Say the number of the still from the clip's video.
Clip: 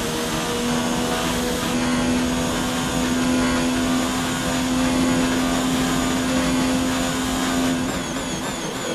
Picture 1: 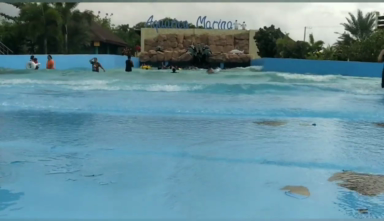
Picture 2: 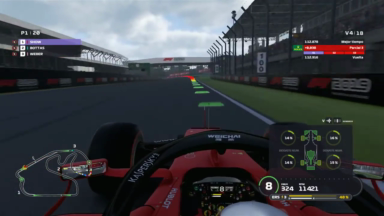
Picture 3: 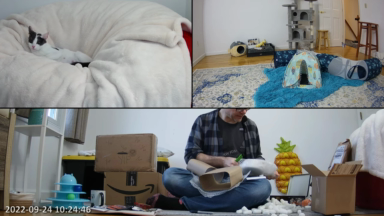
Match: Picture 2